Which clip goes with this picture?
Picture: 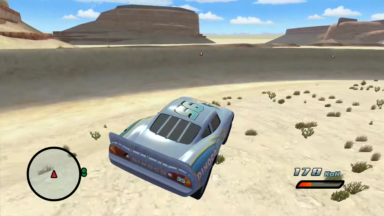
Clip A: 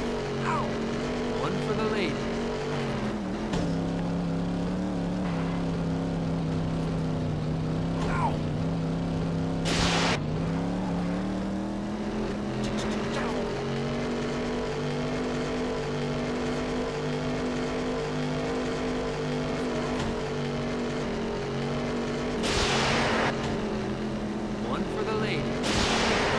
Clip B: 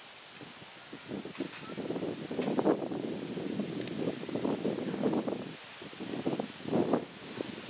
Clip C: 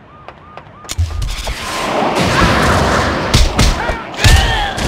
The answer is A